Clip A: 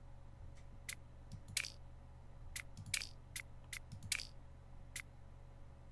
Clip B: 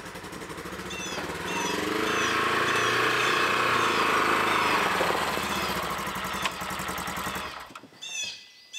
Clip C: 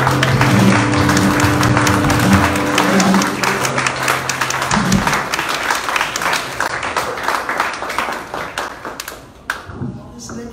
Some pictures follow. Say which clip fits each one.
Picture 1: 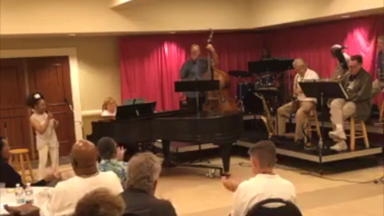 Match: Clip C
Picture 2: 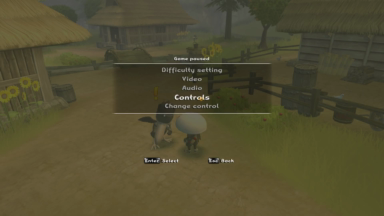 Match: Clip A